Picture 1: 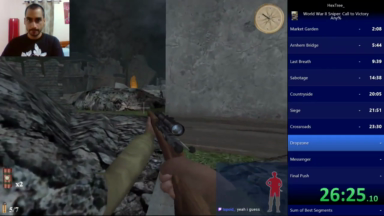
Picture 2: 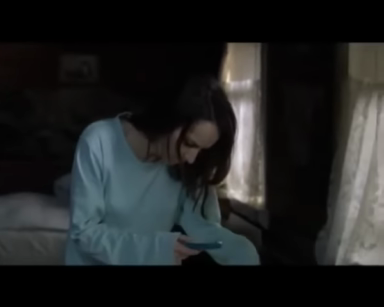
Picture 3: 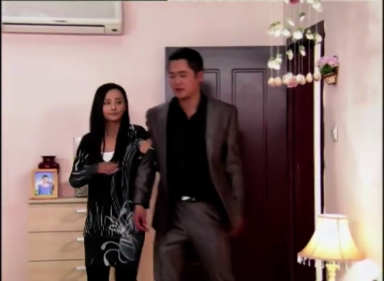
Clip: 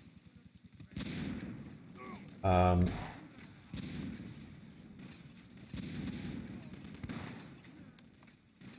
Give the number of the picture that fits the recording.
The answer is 1